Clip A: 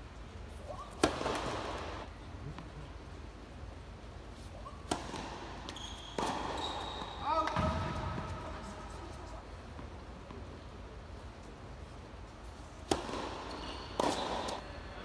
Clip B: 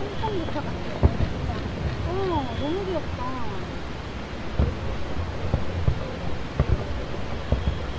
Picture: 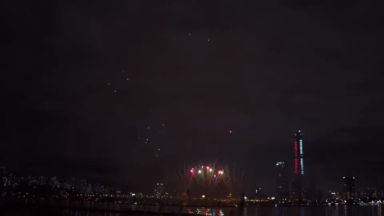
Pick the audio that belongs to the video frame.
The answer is B